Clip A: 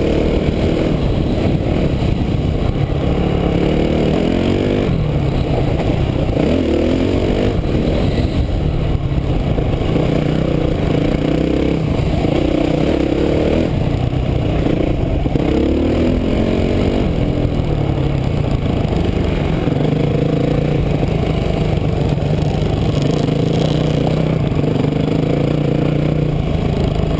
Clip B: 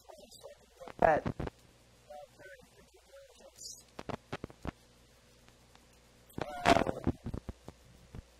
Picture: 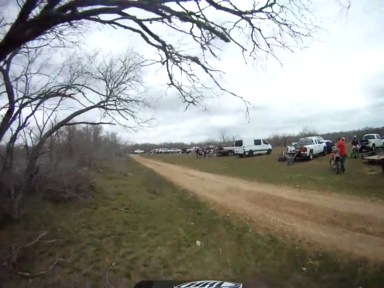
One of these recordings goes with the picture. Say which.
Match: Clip A